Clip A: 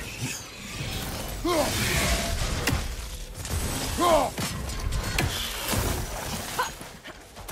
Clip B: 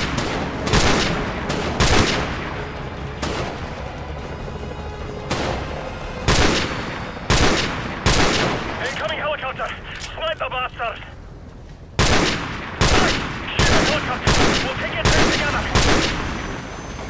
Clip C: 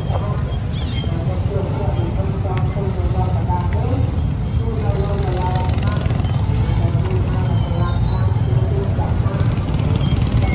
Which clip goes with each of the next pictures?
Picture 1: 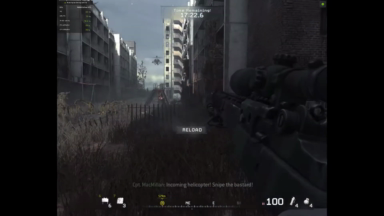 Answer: B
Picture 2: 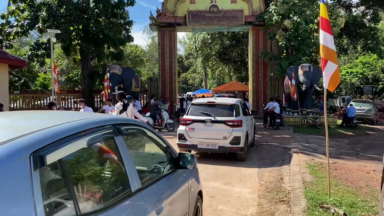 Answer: C